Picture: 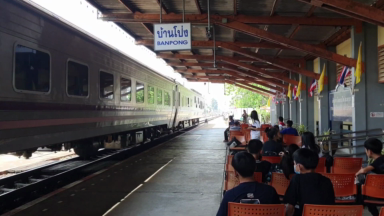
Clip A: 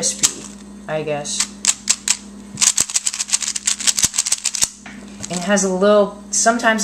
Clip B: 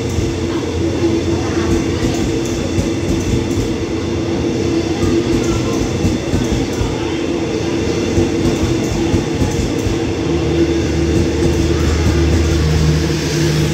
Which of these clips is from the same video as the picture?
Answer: B